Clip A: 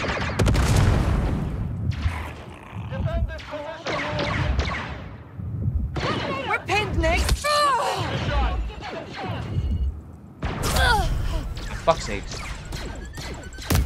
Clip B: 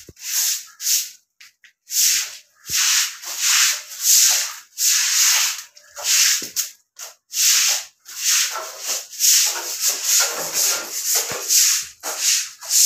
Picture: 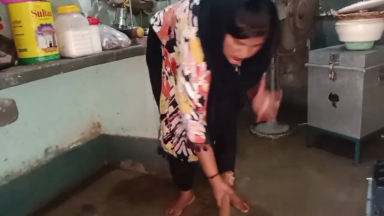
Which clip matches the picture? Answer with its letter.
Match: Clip B